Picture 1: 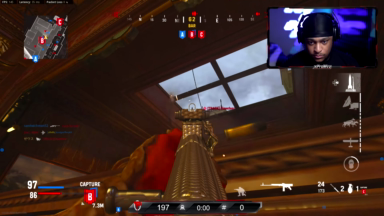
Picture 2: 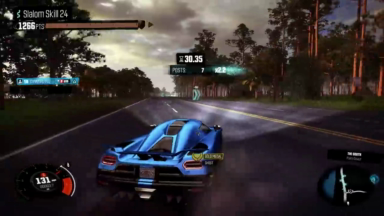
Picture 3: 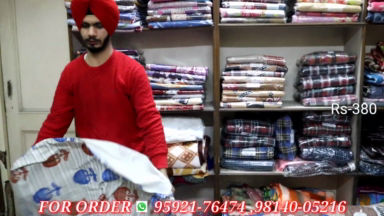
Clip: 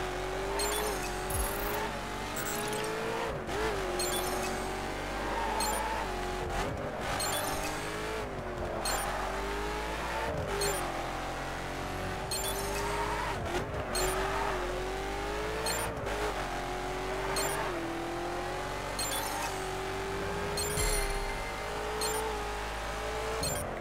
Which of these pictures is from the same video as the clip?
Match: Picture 2